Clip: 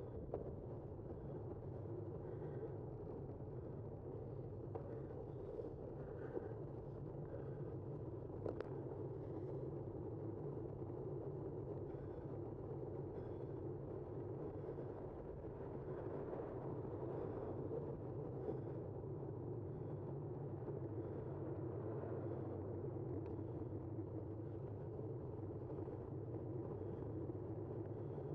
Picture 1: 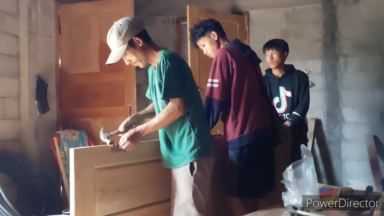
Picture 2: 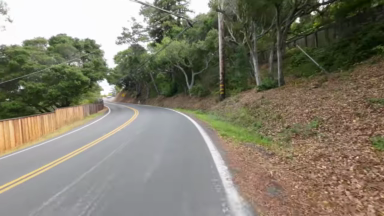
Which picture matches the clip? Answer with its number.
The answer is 2